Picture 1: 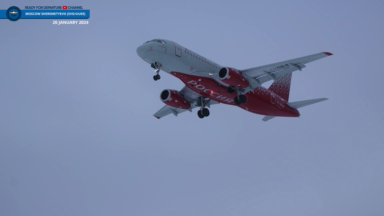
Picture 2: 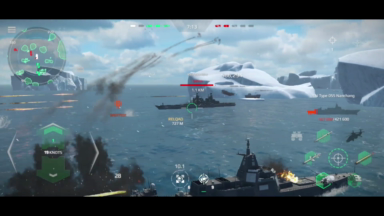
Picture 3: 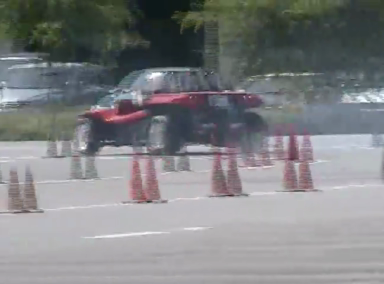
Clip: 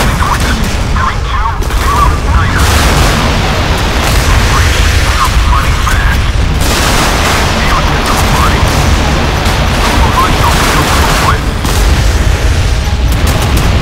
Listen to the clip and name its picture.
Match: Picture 2